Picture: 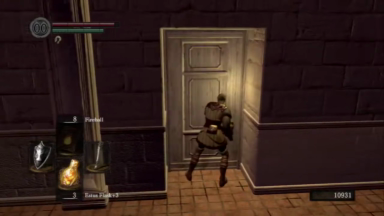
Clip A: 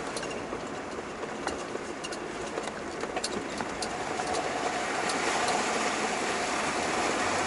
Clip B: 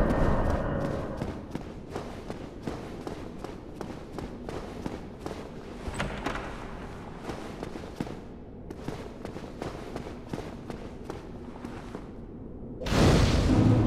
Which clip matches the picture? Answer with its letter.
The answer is B